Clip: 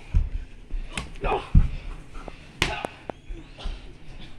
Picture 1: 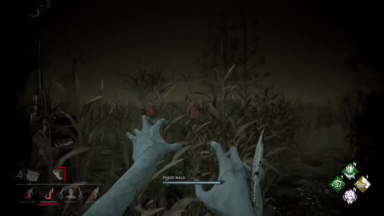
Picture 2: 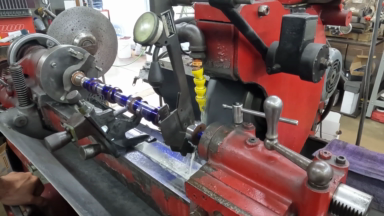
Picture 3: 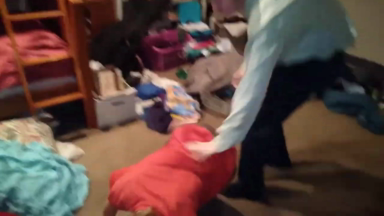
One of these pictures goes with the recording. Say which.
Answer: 3